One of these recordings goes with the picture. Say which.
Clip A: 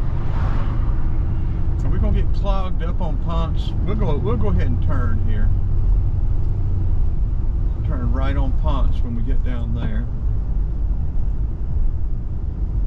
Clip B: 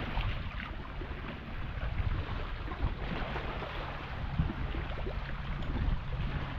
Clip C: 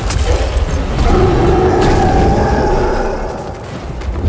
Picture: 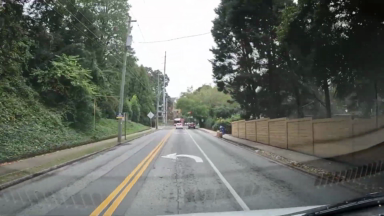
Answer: A